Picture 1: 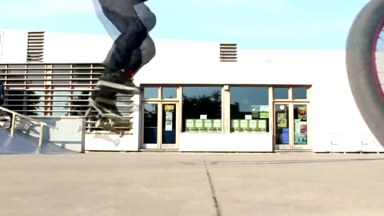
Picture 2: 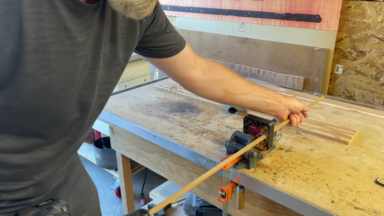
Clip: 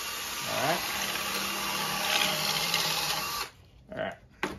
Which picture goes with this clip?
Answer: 2